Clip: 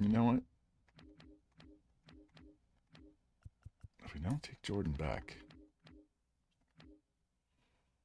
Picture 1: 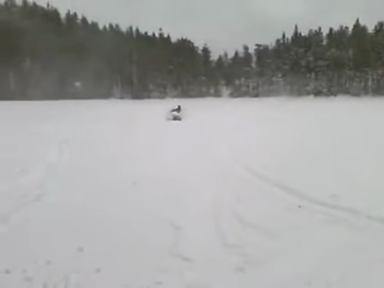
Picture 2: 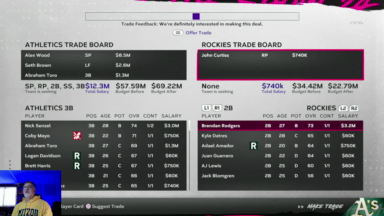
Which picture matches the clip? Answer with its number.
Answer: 2